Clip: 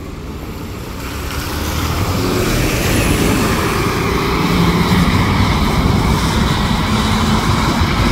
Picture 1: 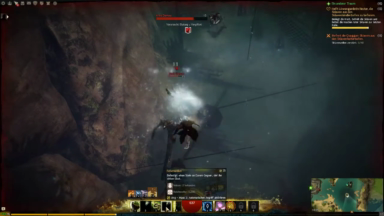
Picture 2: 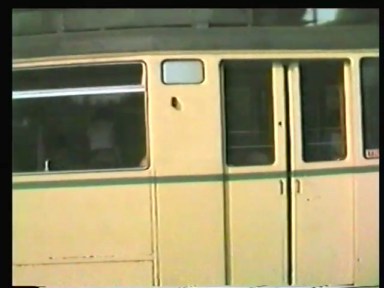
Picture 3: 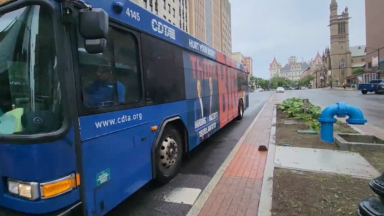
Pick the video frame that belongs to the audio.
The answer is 3